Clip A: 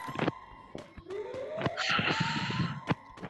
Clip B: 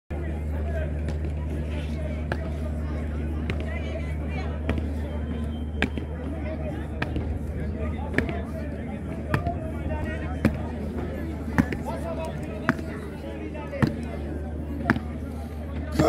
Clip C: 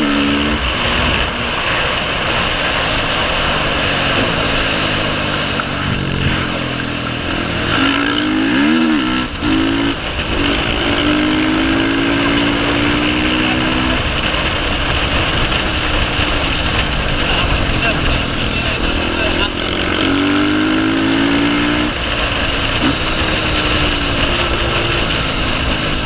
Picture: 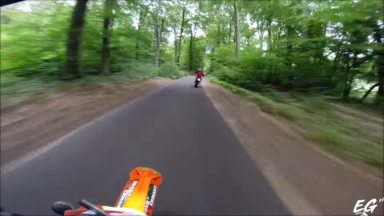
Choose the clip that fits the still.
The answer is C